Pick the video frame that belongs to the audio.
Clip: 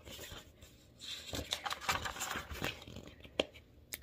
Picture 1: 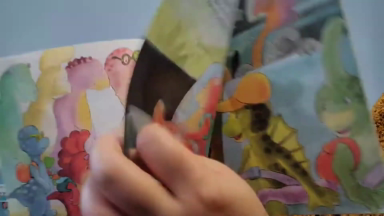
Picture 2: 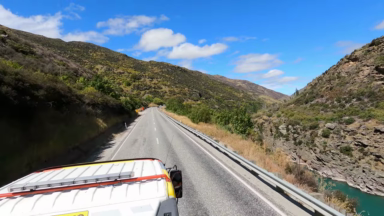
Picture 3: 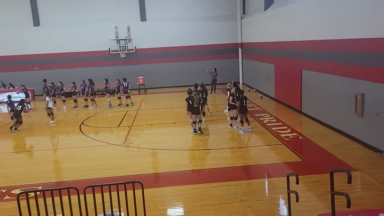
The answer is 1